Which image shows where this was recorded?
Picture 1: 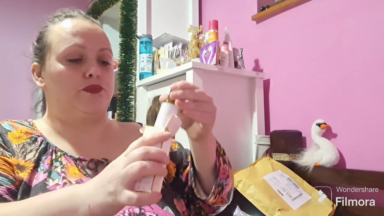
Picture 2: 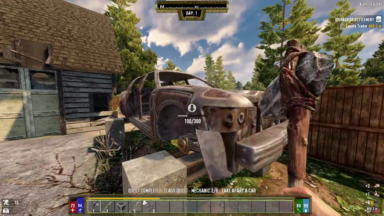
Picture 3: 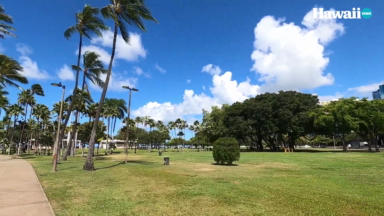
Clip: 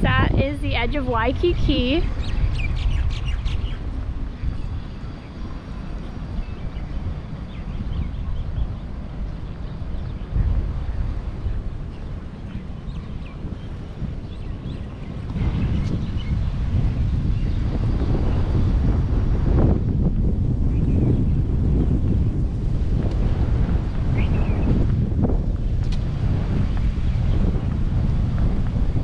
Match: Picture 3